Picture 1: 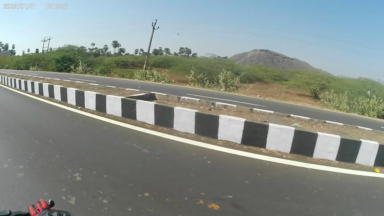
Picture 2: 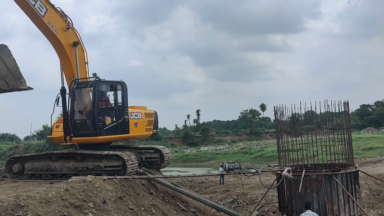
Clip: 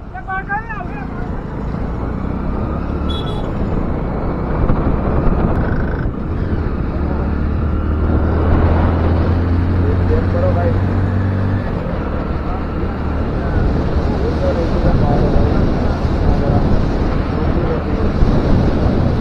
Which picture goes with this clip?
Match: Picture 1